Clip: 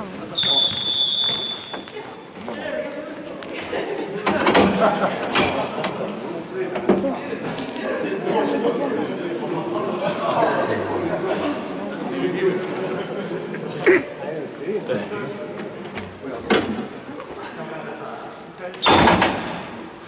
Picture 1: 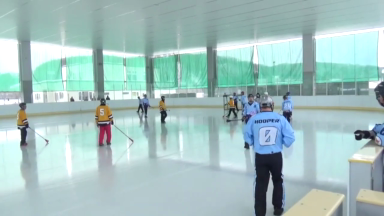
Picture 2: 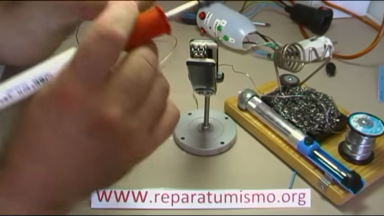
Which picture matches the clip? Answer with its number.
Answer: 1